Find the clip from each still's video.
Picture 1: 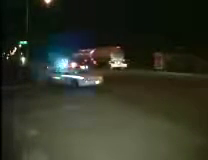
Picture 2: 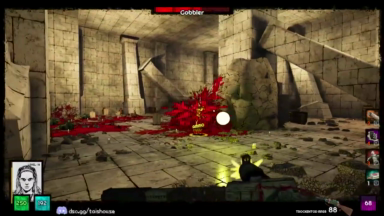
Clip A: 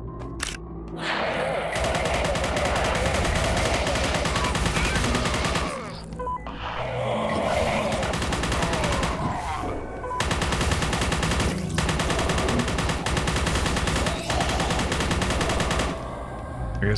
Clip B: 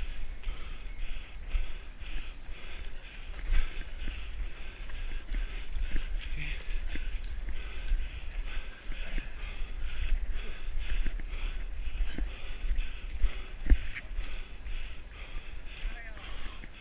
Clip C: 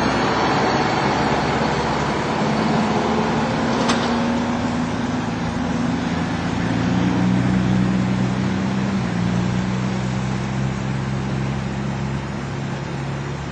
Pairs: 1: C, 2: A